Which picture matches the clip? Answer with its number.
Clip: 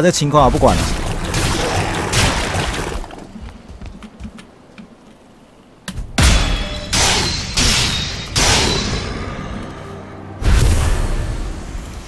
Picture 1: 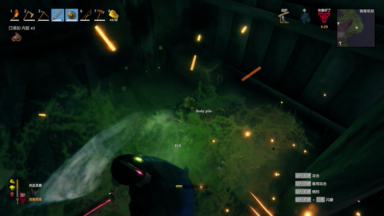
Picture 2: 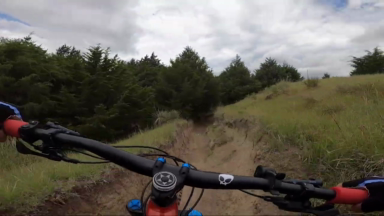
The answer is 1